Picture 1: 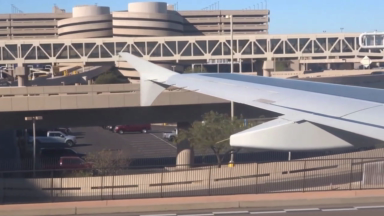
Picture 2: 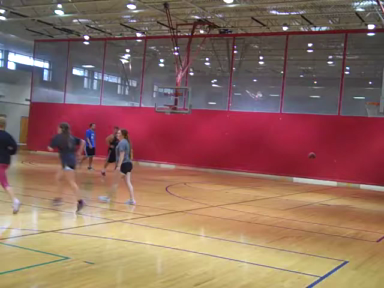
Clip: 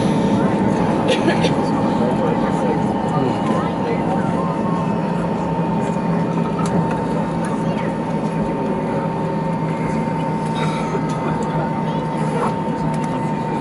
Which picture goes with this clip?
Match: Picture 1